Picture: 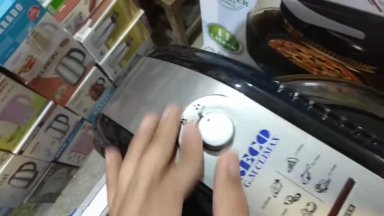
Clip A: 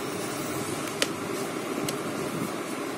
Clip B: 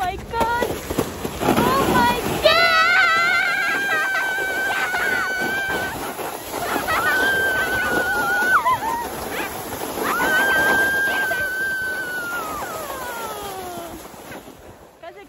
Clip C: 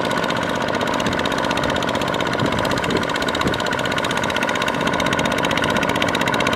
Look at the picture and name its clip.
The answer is A